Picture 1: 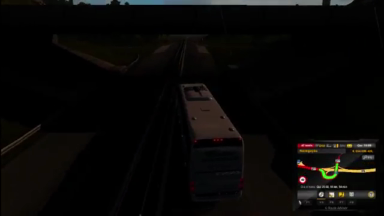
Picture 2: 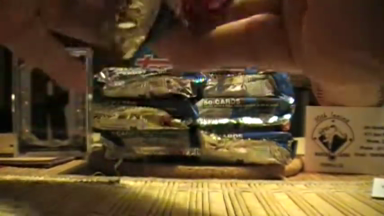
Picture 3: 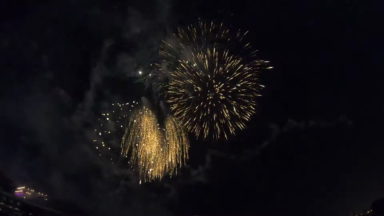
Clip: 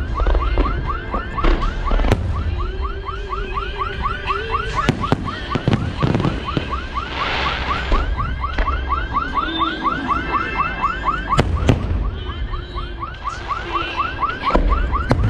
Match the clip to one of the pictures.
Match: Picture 3